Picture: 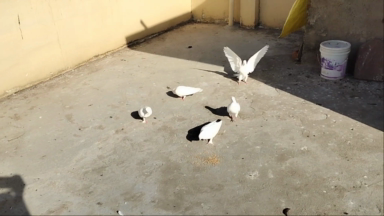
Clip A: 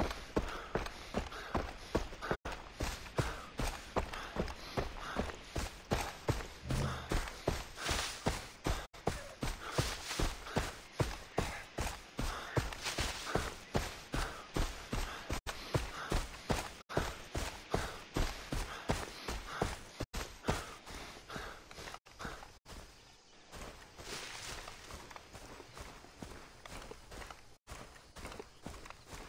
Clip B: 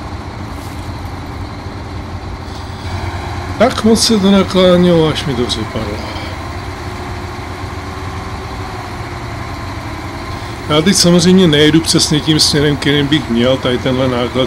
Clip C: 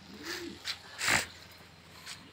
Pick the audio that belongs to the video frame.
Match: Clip C